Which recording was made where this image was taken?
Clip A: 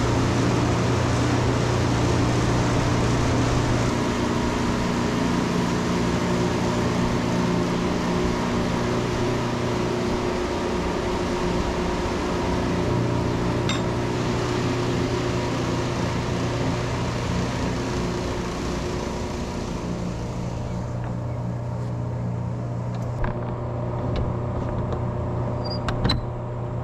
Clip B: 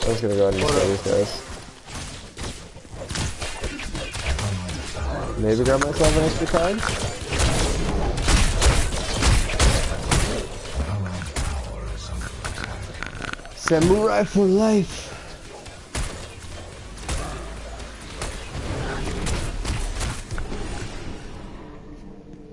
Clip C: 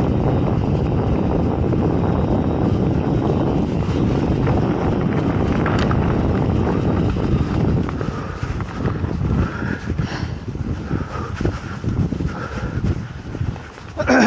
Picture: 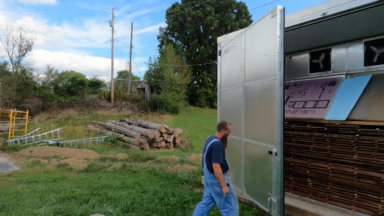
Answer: A